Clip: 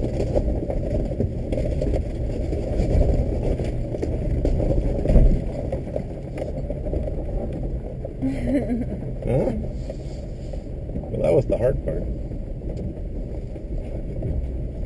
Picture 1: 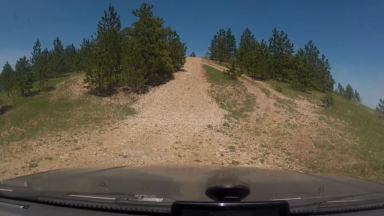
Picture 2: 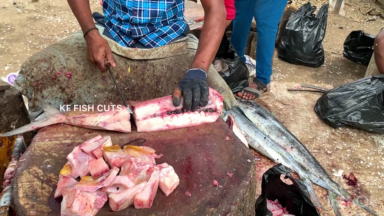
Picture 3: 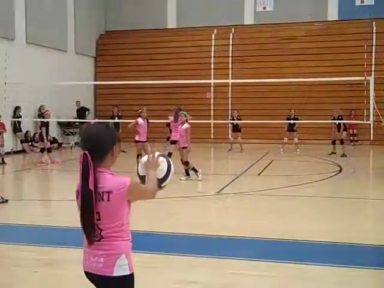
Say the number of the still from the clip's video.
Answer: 1